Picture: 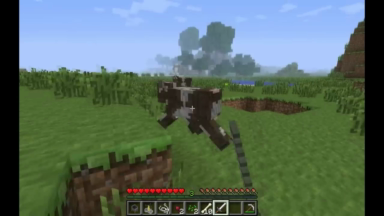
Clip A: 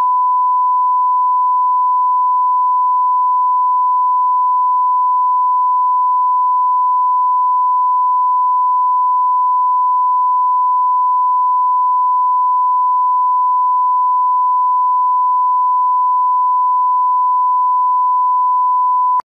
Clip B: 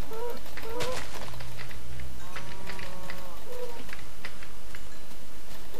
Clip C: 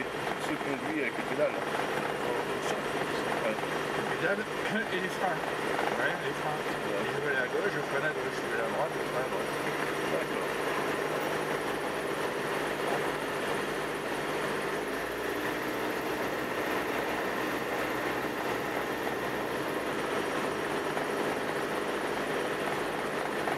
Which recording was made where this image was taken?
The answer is B